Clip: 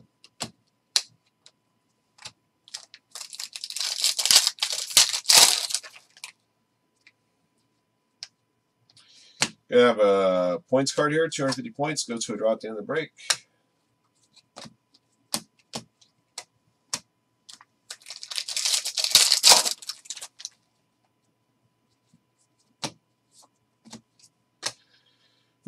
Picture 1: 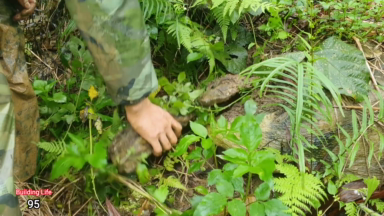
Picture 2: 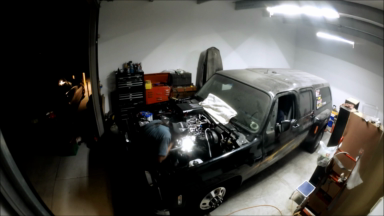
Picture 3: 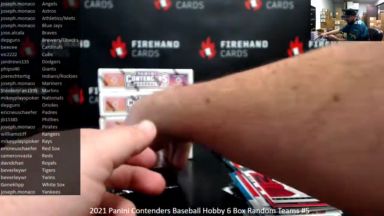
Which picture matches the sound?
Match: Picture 3